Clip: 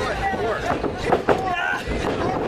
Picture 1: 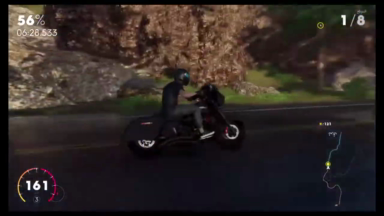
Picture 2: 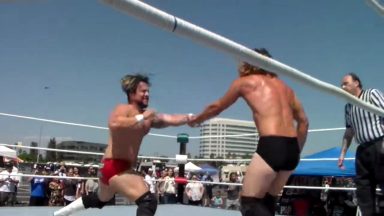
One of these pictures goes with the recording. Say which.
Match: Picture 2